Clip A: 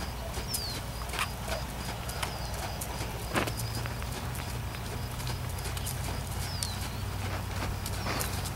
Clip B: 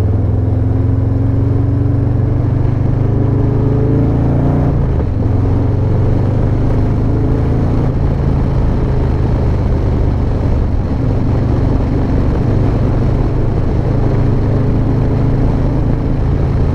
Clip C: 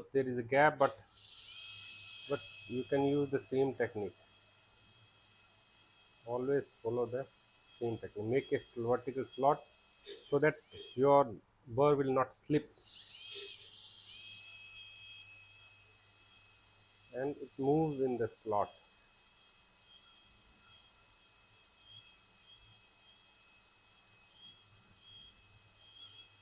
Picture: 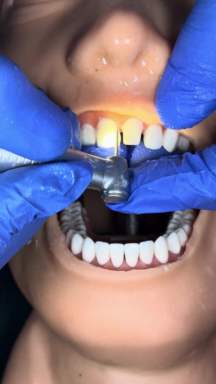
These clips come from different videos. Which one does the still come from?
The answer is C